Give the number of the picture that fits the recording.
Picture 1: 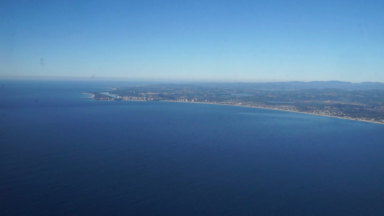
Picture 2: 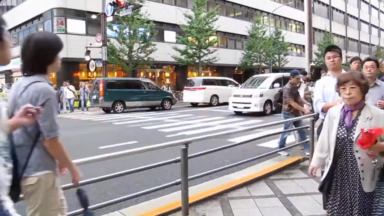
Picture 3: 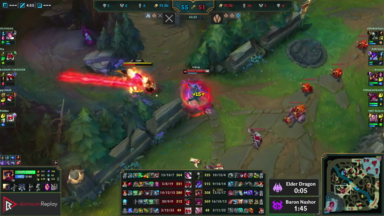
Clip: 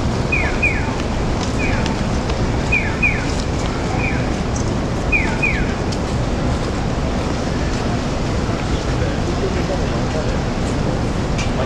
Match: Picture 2